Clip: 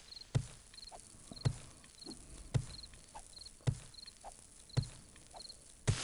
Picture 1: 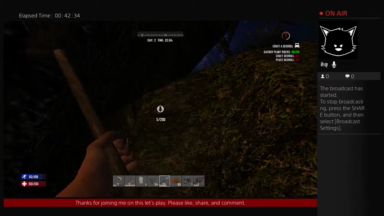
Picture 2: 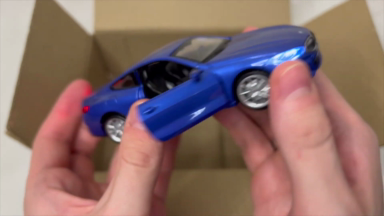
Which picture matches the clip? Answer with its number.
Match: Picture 1